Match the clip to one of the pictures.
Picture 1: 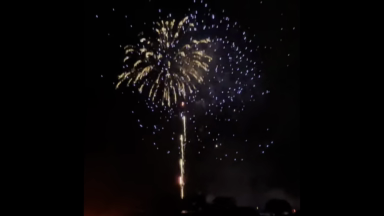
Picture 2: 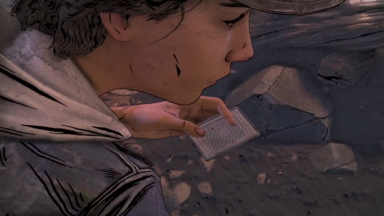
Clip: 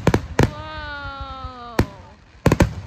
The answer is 1